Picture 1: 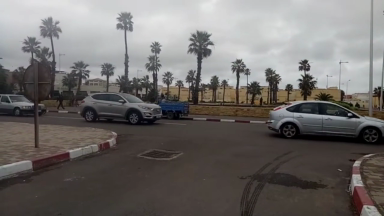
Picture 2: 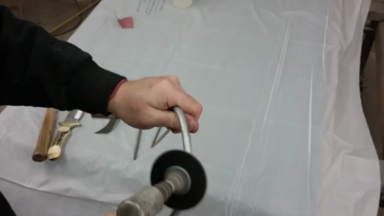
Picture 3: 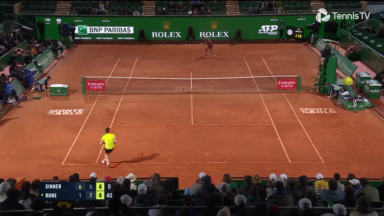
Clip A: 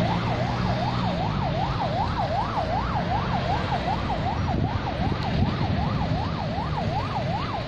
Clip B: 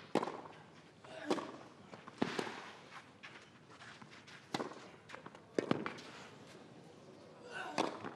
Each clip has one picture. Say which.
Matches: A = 1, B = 3